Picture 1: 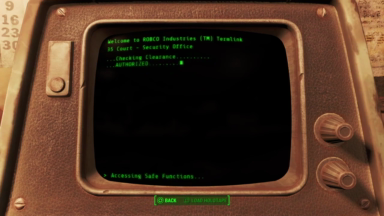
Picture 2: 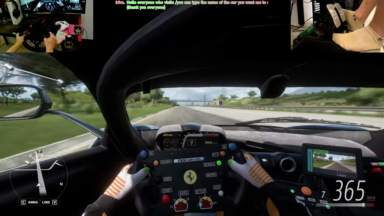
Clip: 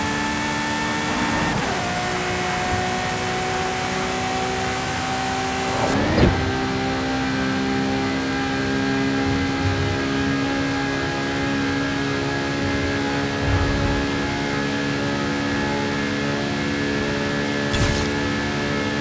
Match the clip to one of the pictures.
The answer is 2